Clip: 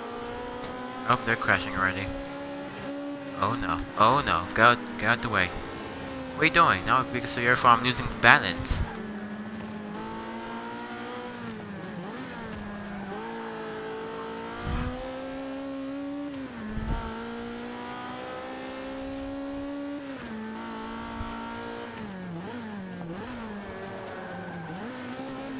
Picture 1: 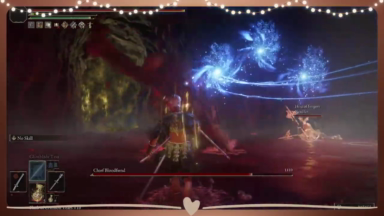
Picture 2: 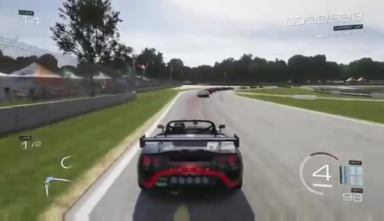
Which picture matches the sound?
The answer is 2